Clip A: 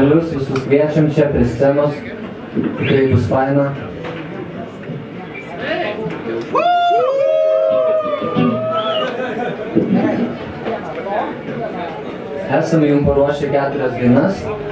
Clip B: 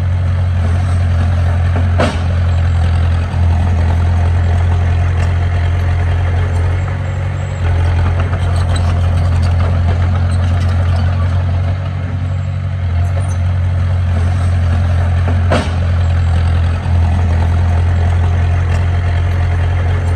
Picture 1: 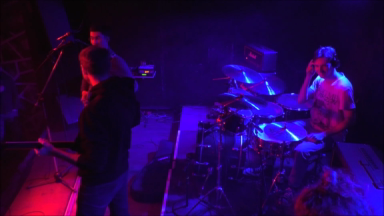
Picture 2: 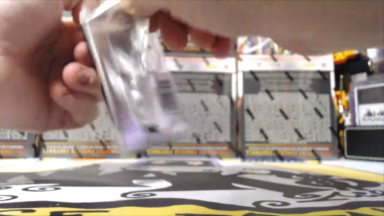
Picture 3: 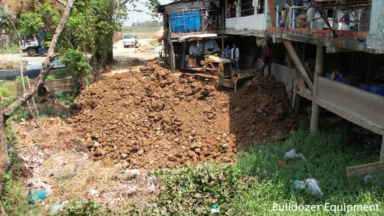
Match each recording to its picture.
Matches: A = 1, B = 3